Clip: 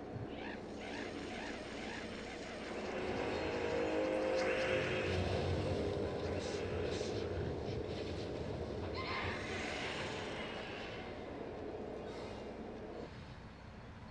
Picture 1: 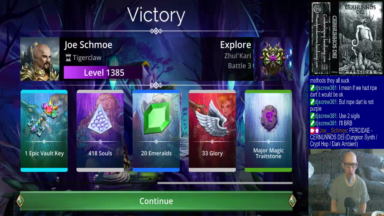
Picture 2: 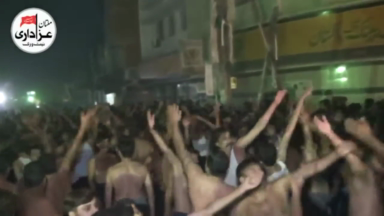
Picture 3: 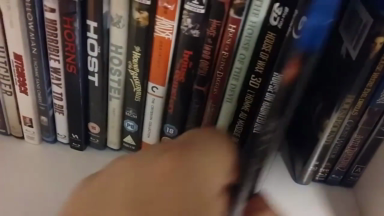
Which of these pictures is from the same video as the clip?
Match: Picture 1